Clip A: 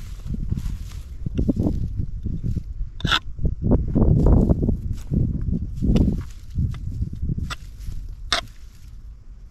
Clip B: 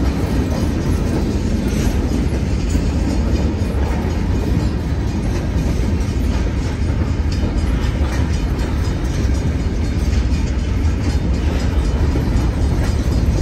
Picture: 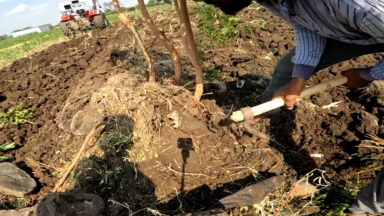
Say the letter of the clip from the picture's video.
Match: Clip A